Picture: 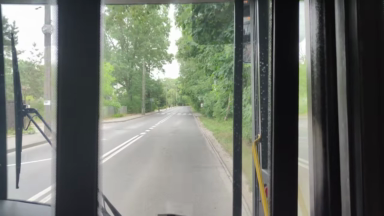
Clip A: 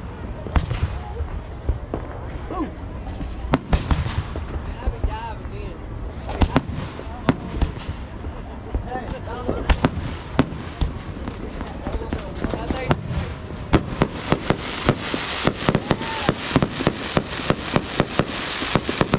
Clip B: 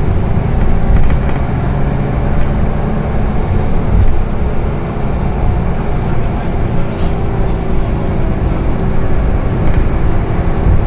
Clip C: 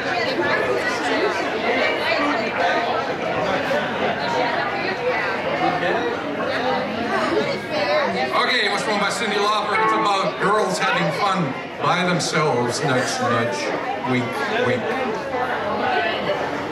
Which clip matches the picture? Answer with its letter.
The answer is B